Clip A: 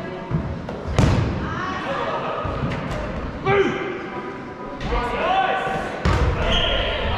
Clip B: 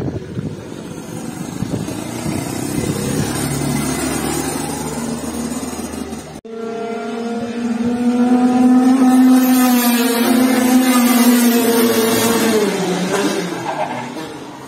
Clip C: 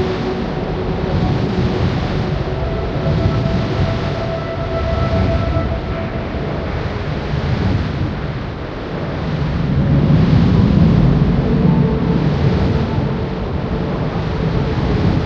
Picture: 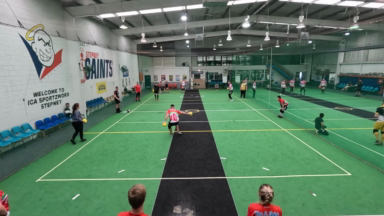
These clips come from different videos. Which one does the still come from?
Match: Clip A